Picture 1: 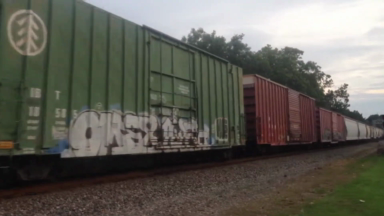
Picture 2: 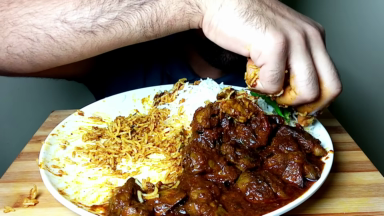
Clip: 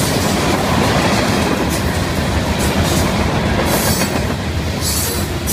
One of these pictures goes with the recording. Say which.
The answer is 1